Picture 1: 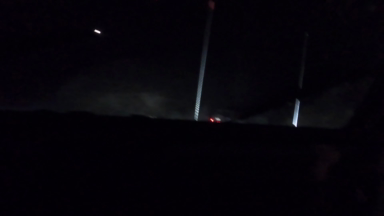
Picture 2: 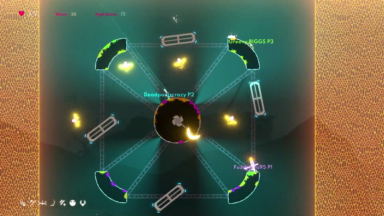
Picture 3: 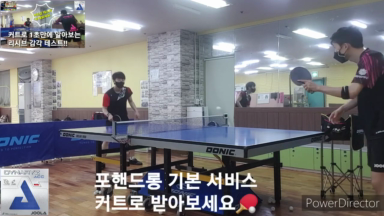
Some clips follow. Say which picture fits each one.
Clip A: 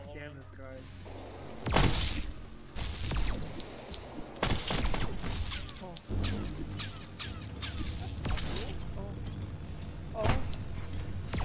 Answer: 2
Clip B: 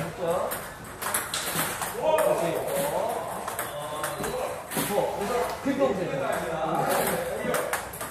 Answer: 3